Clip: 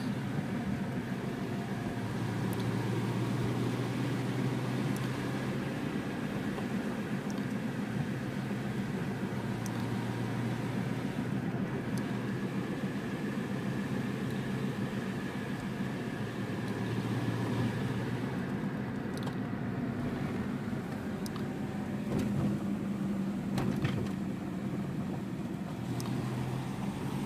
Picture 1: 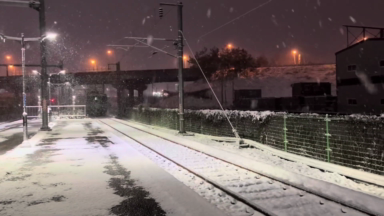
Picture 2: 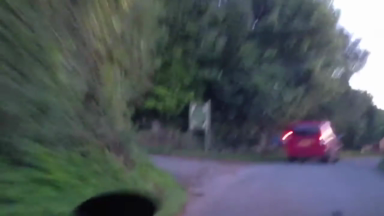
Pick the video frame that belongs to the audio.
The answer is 2